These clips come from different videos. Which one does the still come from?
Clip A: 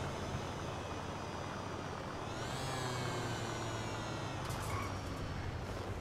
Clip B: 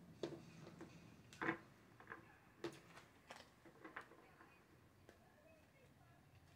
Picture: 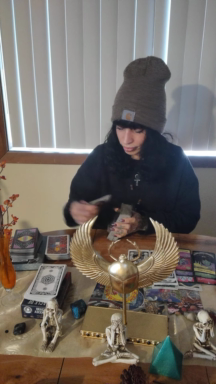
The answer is B